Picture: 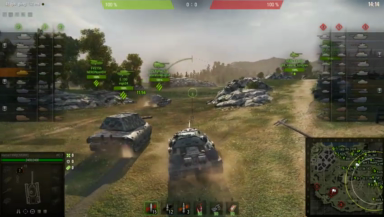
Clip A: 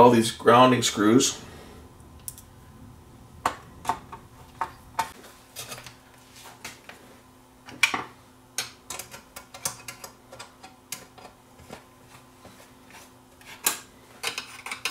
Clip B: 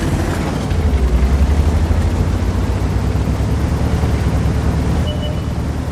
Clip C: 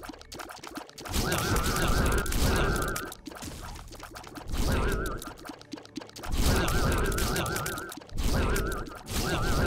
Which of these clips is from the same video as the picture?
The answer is B